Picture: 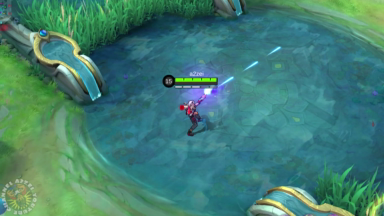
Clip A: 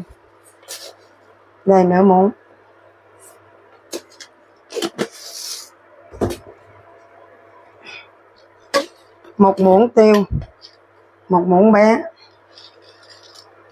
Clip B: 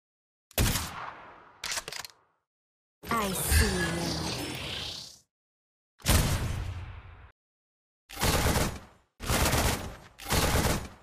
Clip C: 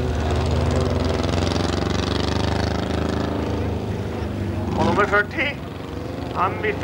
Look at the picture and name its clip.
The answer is B